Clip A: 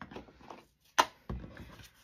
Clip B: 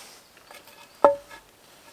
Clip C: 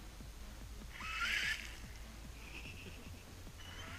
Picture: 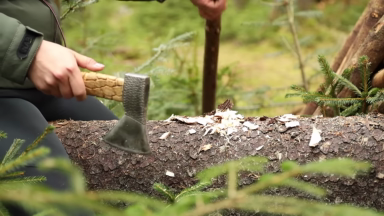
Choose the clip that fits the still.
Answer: B